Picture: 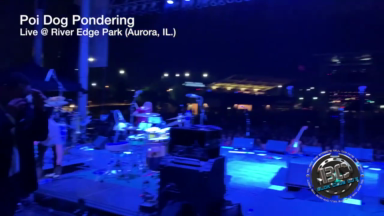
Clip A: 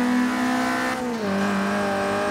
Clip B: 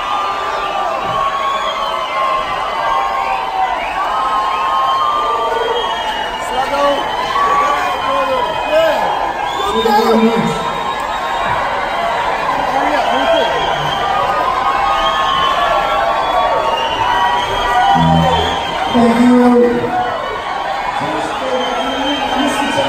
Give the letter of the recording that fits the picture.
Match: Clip B